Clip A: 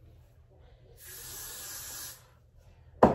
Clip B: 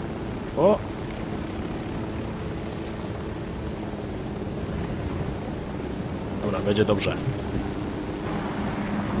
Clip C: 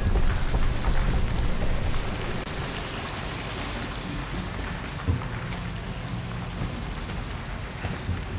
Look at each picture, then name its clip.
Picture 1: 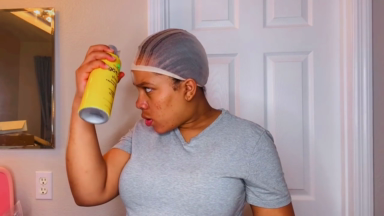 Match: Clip A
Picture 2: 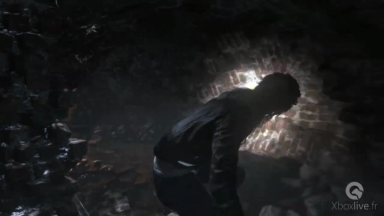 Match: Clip C